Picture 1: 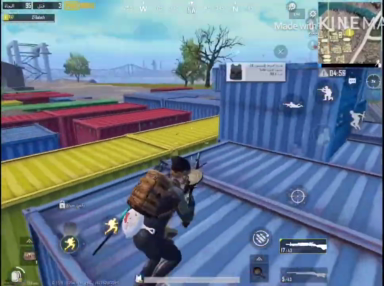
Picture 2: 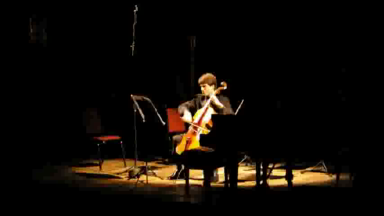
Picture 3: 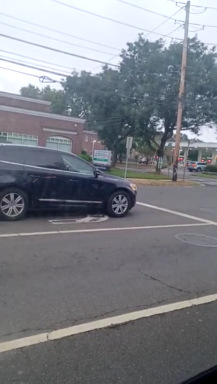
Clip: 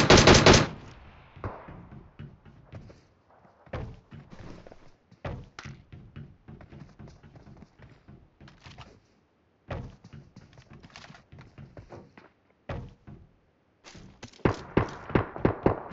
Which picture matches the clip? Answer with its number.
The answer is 1